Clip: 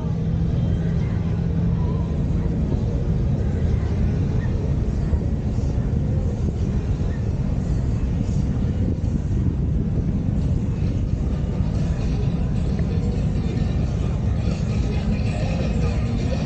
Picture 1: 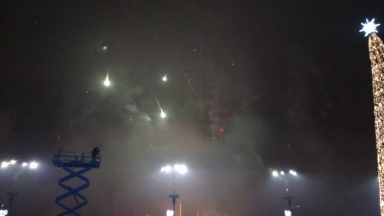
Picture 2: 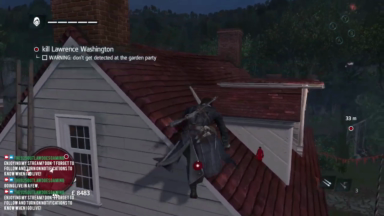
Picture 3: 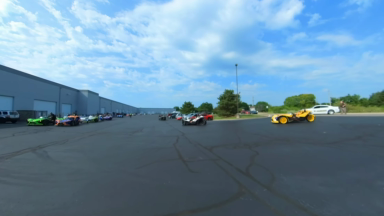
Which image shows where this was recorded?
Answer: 3